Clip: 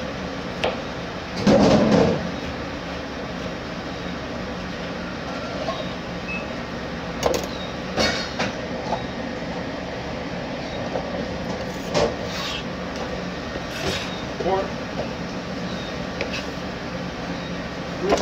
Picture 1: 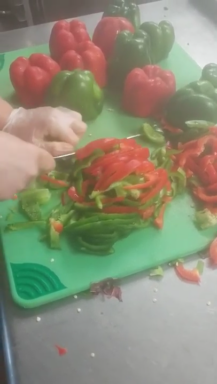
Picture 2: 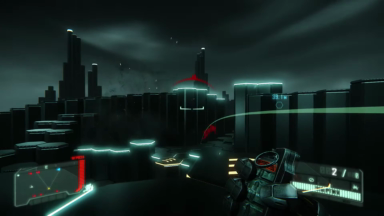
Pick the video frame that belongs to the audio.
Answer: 1